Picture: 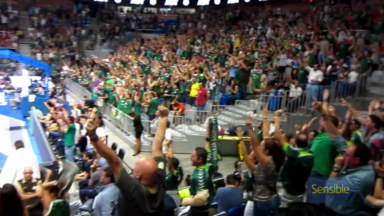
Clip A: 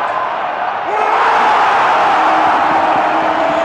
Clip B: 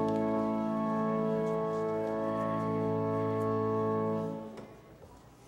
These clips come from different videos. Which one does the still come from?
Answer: A